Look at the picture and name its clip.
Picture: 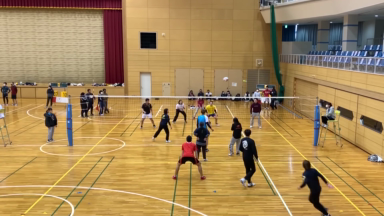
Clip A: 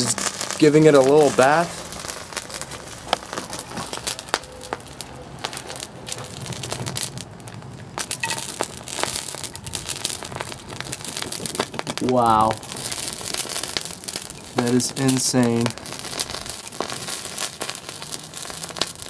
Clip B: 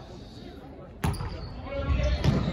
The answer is B